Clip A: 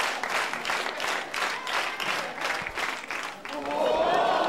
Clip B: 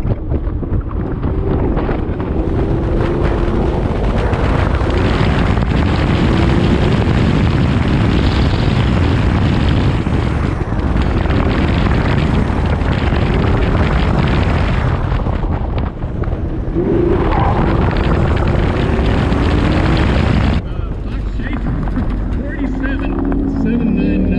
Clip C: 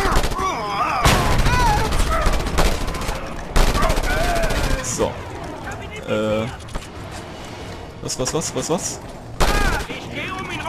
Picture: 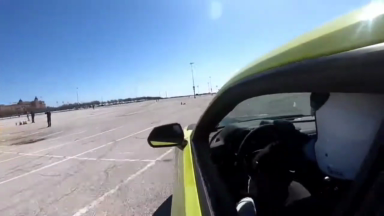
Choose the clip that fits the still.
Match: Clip B